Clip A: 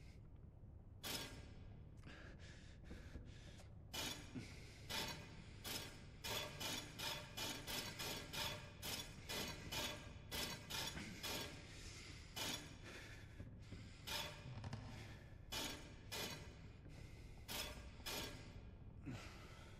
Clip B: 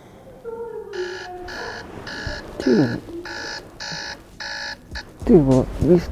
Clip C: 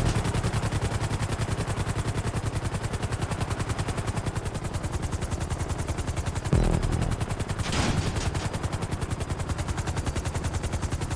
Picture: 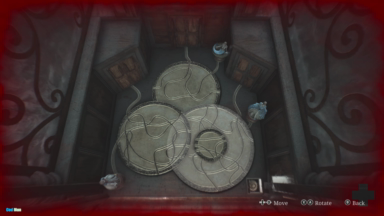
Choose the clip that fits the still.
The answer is A